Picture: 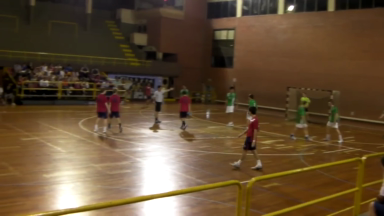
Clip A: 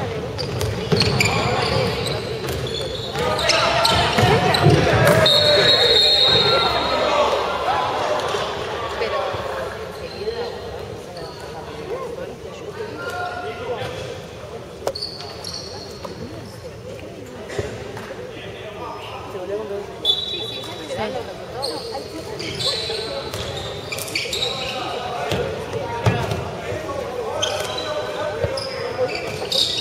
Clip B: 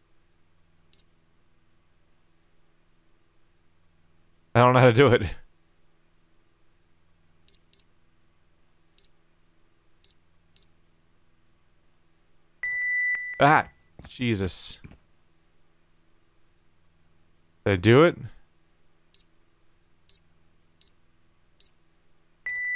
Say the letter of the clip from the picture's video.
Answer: A